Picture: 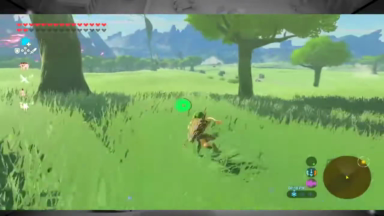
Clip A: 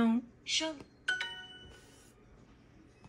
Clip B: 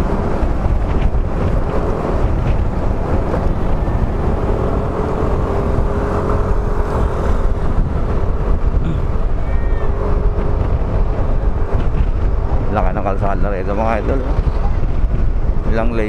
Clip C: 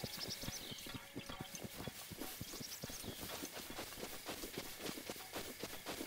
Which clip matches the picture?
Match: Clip C